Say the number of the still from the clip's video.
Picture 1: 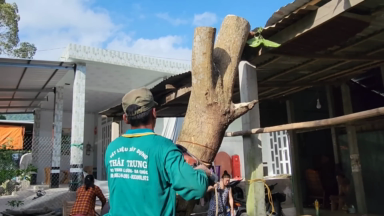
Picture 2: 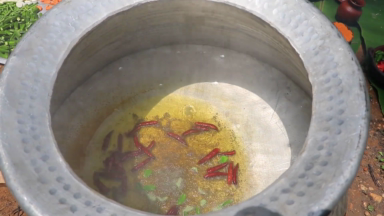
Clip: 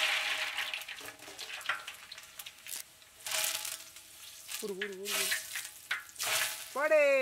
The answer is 2